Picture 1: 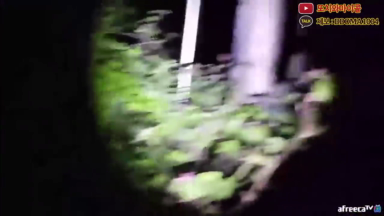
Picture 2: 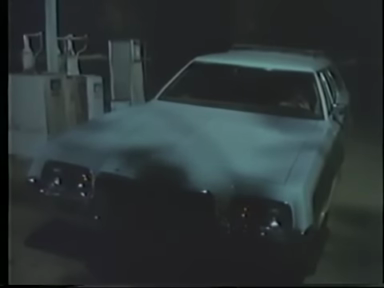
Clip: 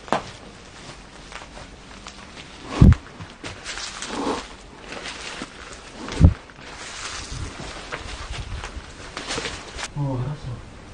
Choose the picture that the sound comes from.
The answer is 1